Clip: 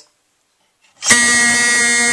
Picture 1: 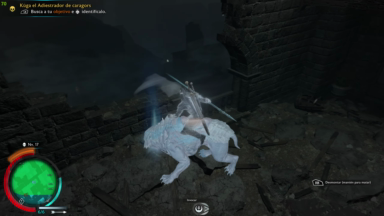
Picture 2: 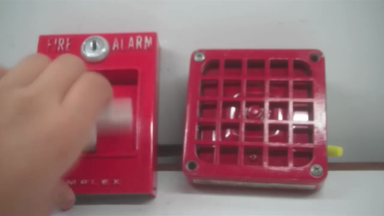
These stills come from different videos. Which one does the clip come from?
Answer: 2